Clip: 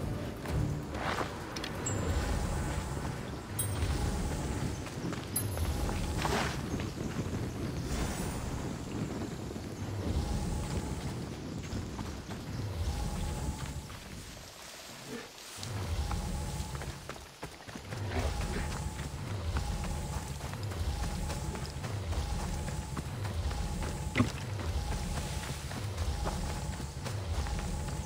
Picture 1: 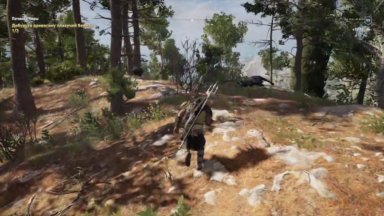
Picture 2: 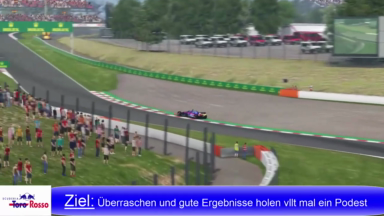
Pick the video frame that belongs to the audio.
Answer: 1